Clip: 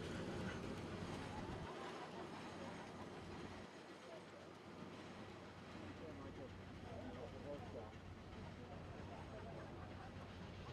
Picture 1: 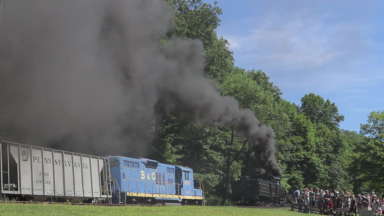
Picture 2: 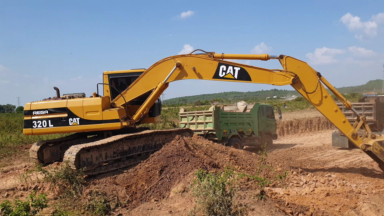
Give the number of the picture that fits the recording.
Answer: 1